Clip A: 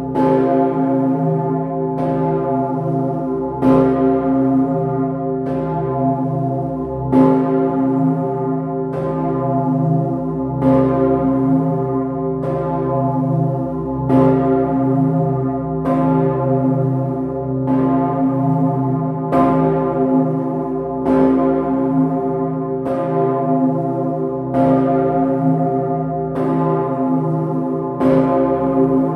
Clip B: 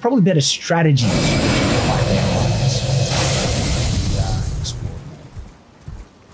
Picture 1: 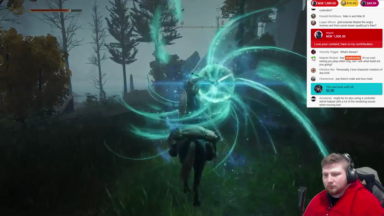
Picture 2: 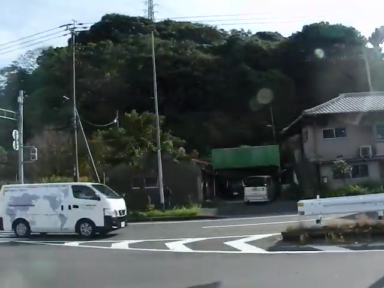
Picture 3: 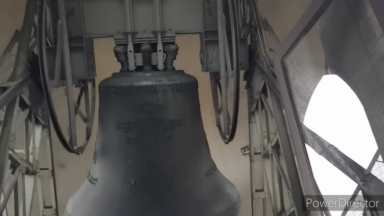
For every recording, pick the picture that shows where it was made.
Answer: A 3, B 1